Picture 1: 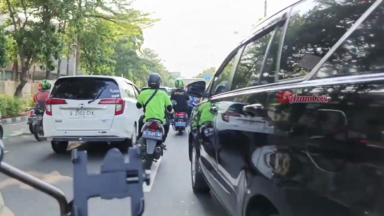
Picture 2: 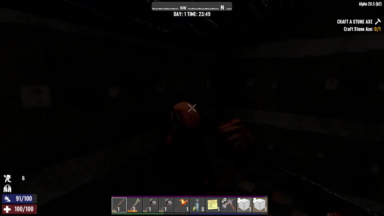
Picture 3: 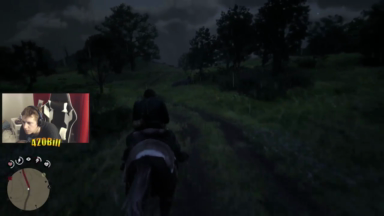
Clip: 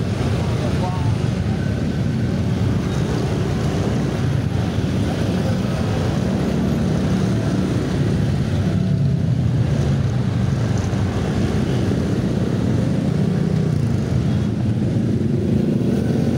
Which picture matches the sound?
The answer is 1